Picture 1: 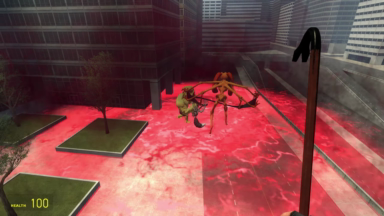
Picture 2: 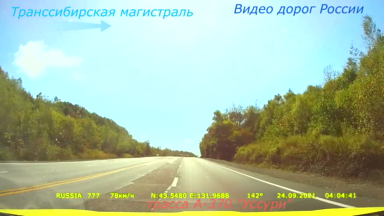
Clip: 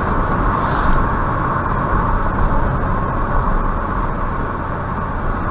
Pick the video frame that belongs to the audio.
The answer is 2